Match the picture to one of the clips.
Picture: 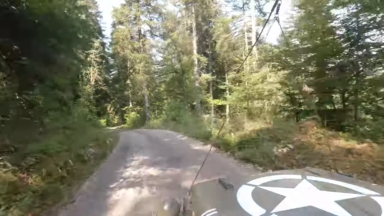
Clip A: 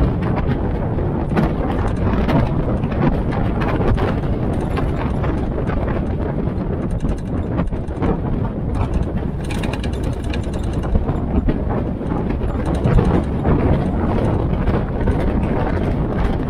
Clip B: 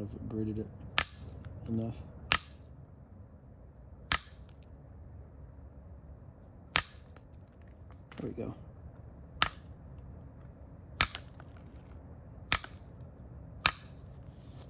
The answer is A